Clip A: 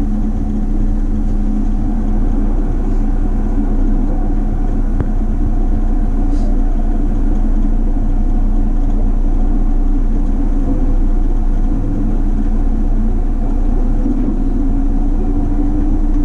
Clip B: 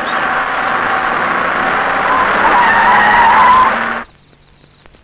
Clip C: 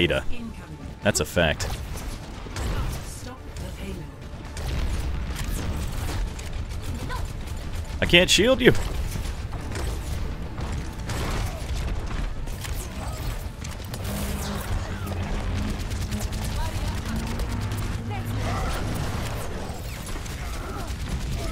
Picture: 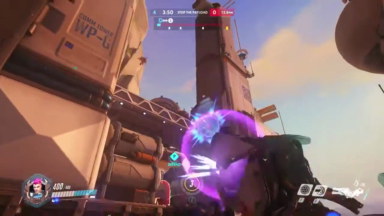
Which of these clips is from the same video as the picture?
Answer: C